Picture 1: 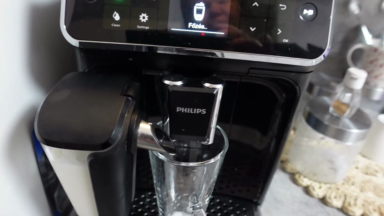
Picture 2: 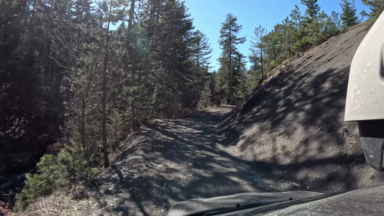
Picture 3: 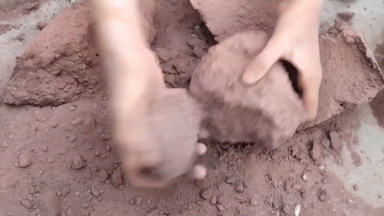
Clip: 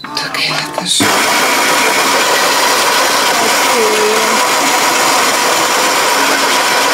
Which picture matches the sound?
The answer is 1